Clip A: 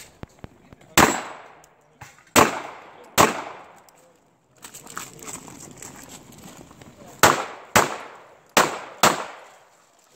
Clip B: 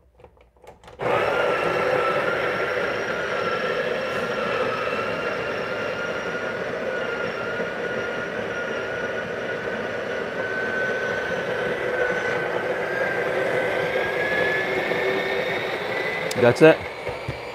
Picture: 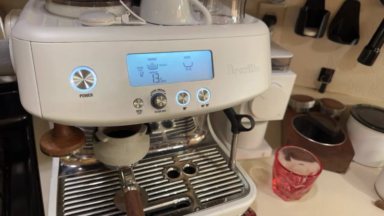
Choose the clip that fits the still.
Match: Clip B